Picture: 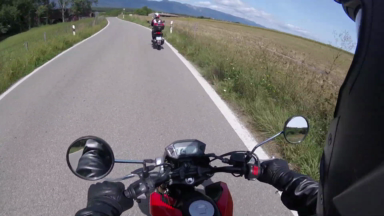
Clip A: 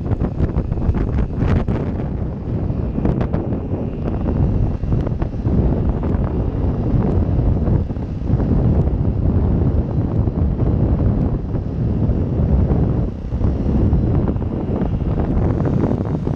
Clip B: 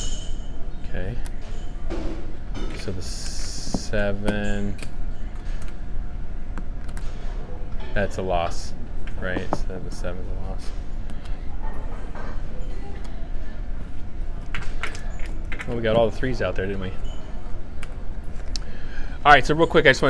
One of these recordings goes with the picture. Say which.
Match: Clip A